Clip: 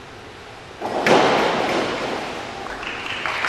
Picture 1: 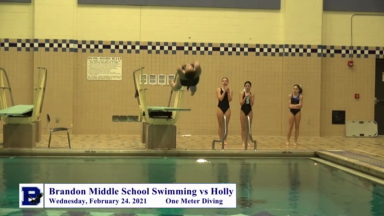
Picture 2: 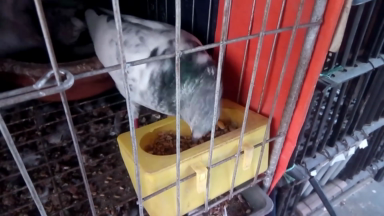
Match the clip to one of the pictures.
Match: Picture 1